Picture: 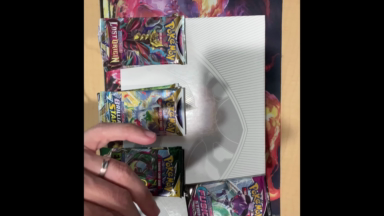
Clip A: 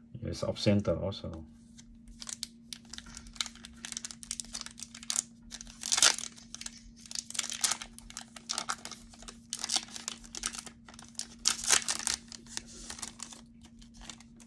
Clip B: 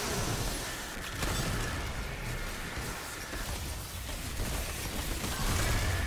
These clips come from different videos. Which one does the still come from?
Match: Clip A